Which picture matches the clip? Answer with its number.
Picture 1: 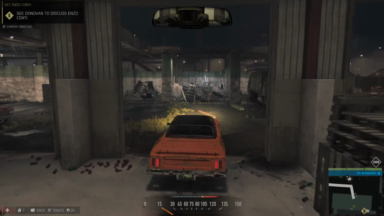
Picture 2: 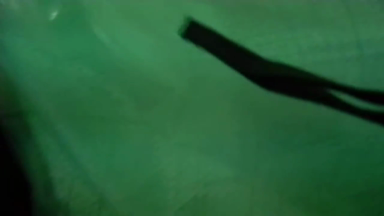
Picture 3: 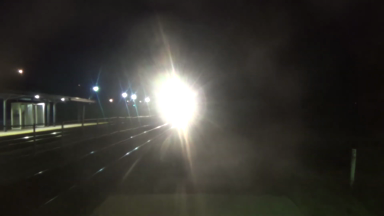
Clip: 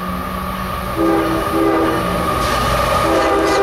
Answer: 3